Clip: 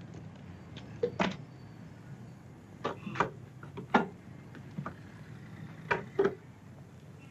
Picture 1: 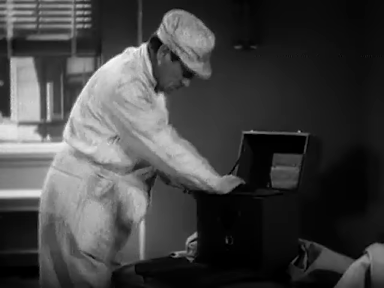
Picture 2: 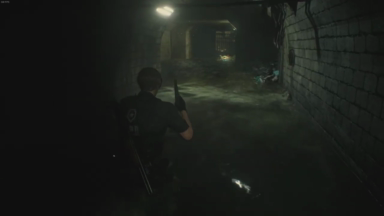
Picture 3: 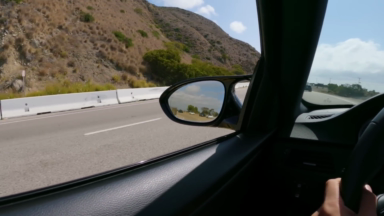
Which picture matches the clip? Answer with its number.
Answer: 1